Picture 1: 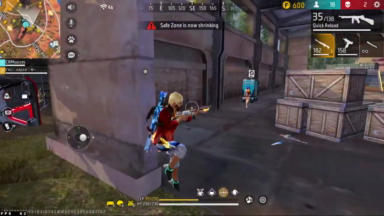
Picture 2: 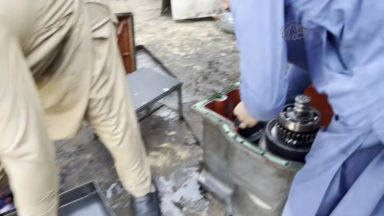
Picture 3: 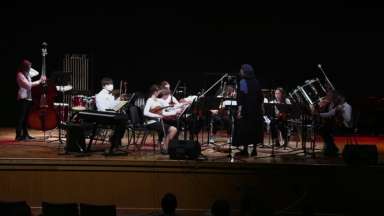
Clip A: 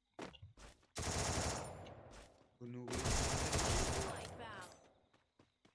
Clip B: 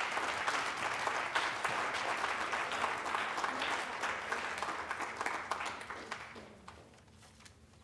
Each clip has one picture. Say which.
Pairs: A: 1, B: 3